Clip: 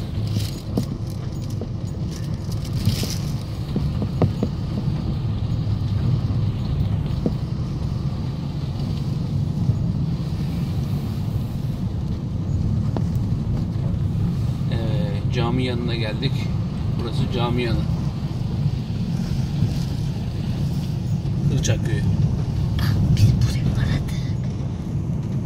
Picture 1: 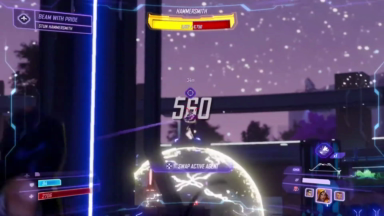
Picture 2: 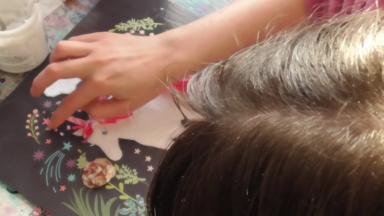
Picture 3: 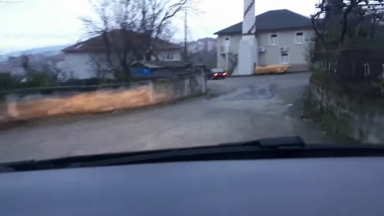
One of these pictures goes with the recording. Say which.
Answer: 3